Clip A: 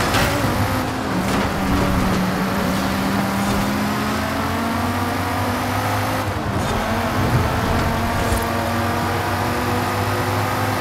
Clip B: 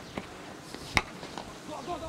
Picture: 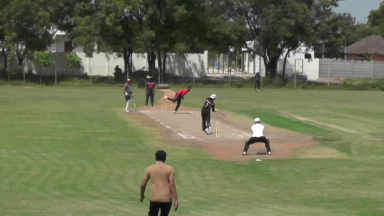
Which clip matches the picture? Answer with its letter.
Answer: B